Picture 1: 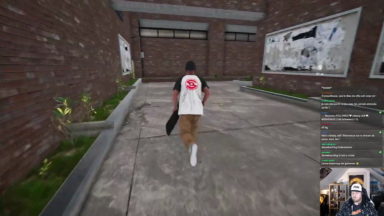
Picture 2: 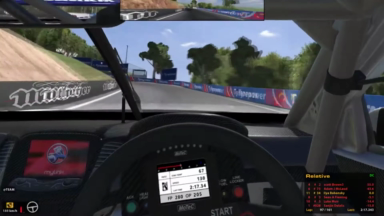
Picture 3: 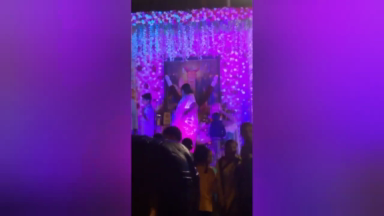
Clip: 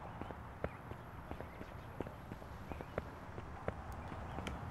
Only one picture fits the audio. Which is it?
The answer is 1